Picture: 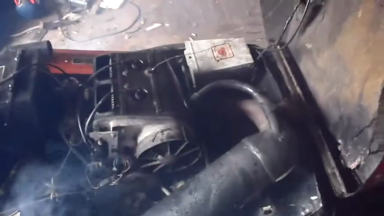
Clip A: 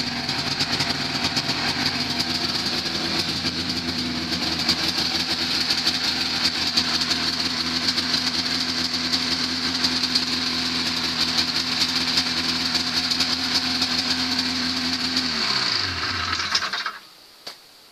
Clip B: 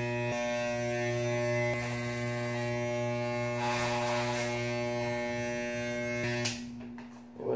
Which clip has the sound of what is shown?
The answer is A